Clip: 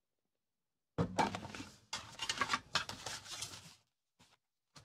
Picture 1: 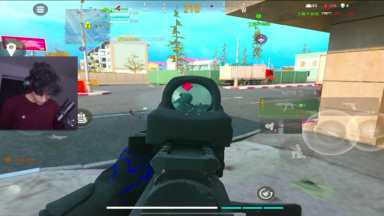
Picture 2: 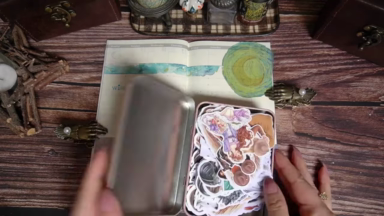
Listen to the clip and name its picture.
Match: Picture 2